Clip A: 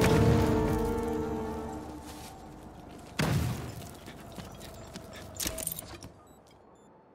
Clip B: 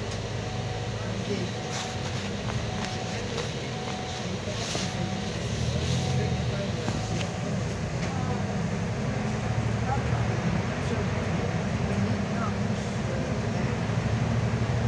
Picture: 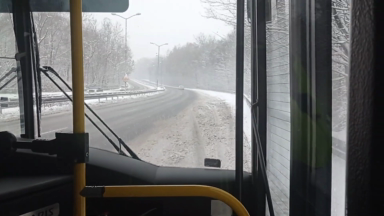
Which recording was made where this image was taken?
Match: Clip B